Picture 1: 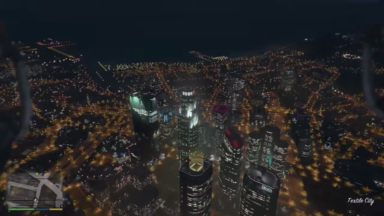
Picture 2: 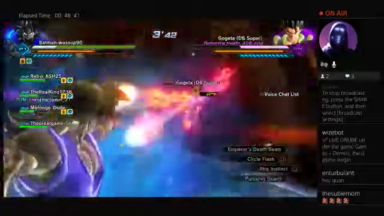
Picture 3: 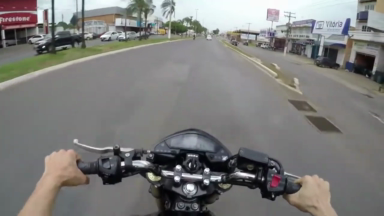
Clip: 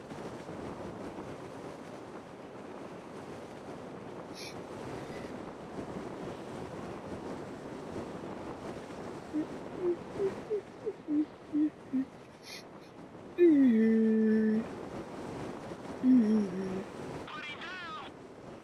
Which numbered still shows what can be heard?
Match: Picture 1